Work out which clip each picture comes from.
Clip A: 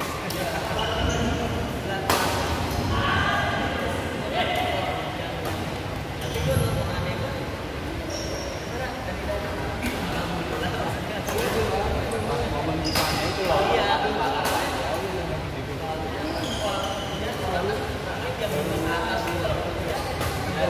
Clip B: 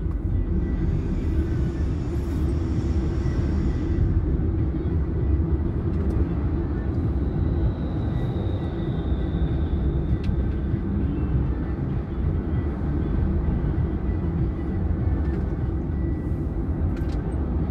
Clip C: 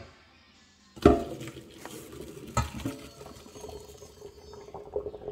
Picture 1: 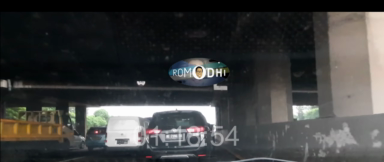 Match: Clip B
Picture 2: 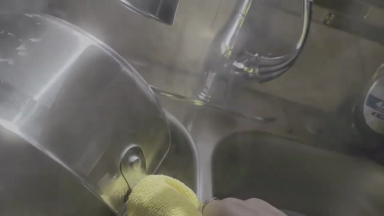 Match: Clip C